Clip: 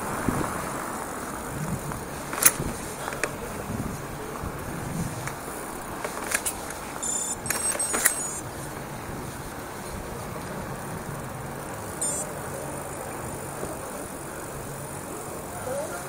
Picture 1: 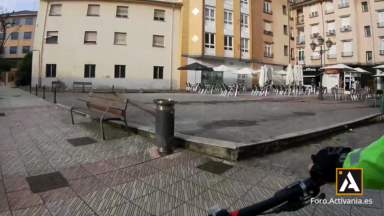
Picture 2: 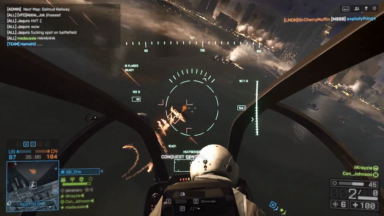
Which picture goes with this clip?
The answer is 1